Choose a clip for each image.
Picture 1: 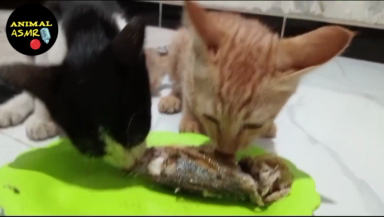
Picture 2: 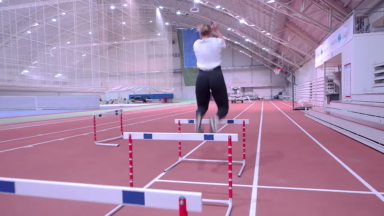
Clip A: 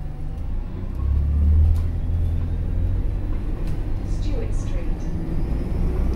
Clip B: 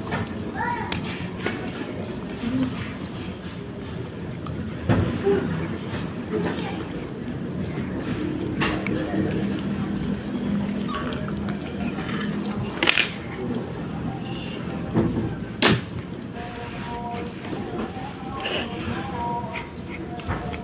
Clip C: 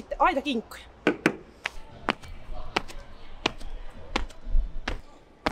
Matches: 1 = B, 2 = C